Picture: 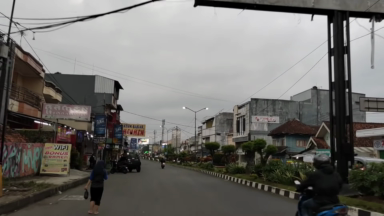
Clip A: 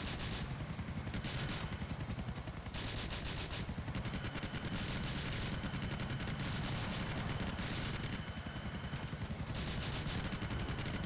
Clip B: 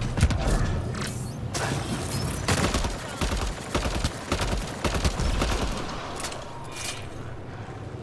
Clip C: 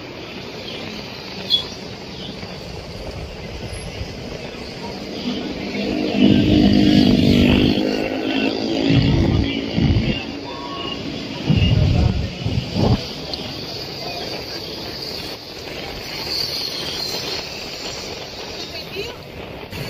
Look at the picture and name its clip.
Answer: C